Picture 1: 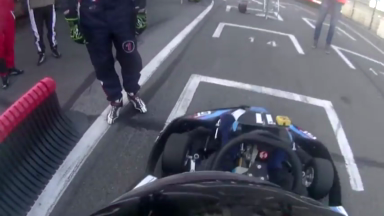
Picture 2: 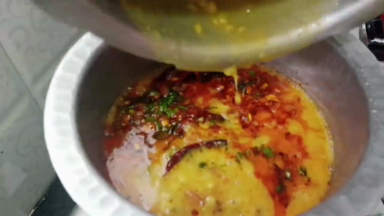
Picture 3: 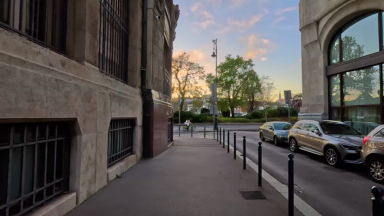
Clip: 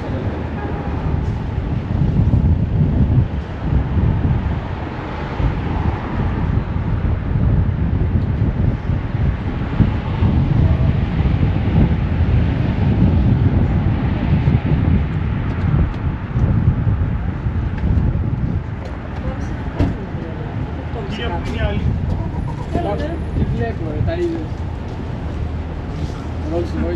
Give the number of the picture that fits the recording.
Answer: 3